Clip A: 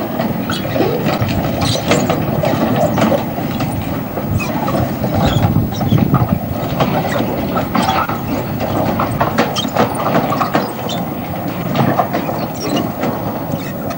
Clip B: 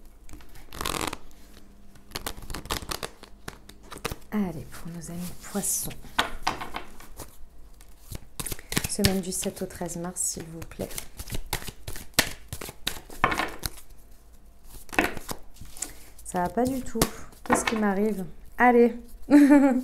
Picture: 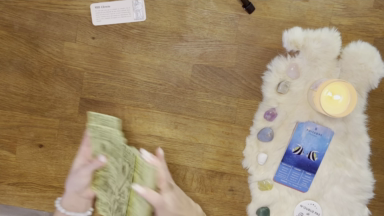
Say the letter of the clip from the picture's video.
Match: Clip B